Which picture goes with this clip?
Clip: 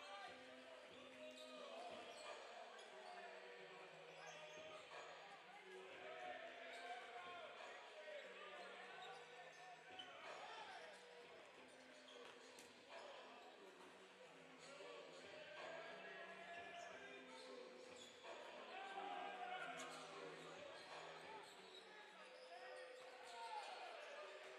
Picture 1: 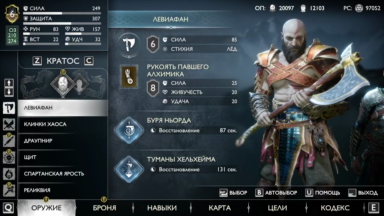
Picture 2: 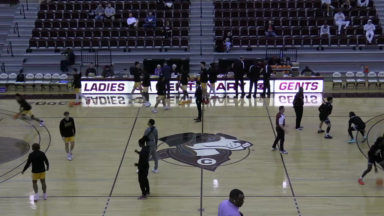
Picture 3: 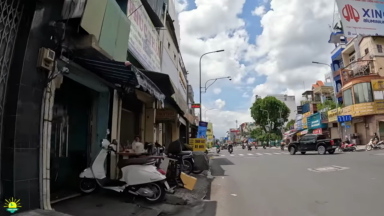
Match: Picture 2